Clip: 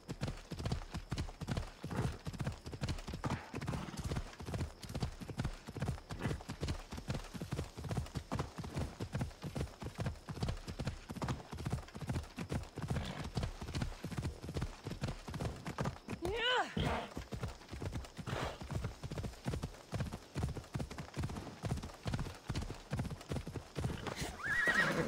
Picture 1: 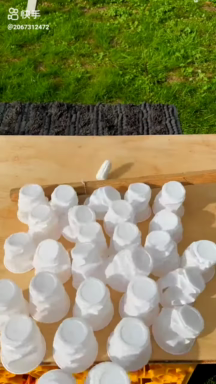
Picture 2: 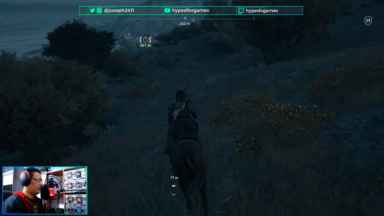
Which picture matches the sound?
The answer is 2